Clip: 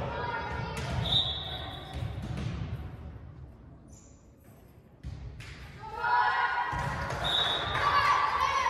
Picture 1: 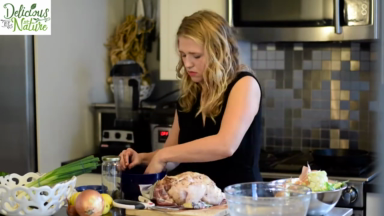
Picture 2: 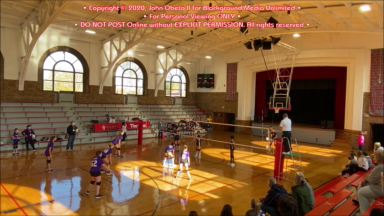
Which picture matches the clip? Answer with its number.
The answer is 2